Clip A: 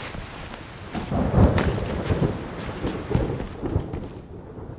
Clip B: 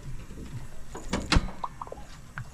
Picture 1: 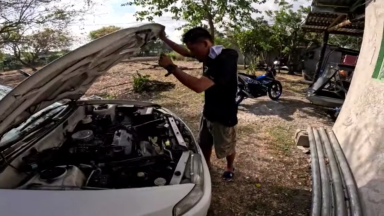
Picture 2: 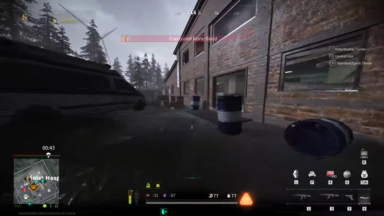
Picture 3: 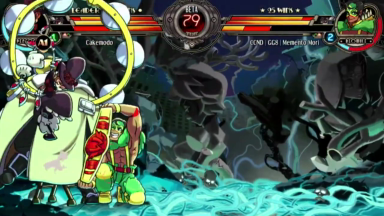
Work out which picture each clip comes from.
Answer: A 2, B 1